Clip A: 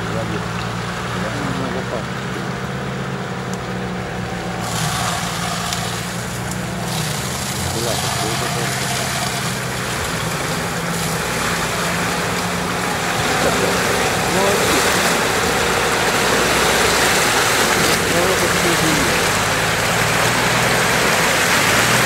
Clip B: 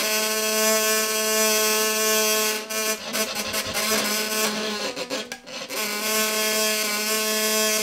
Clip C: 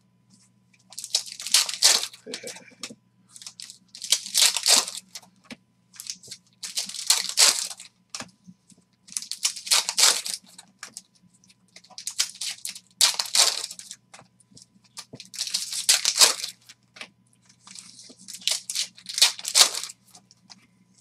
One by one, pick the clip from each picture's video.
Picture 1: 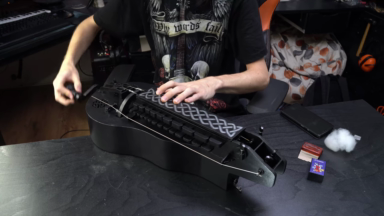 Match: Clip B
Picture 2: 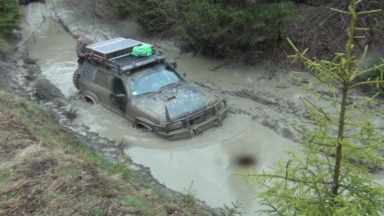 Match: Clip A